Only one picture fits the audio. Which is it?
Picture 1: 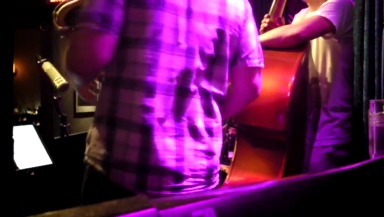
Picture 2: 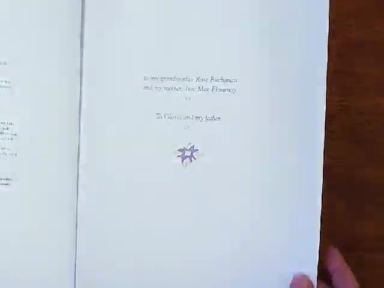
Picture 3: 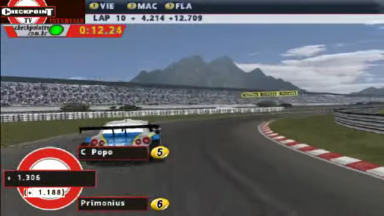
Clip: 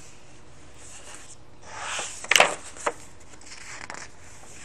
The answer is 2